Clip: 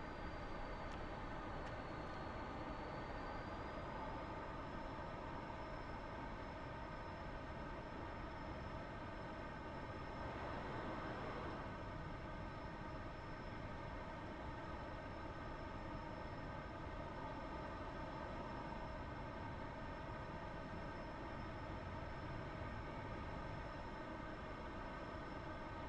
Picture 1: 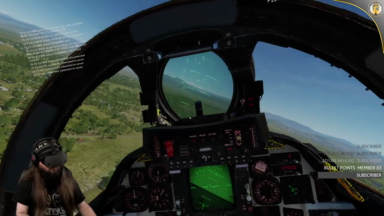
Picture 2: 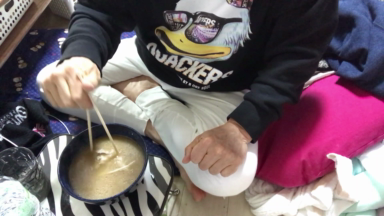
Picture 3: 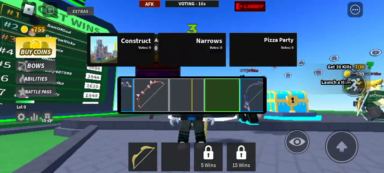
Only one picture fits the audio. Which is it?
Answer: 1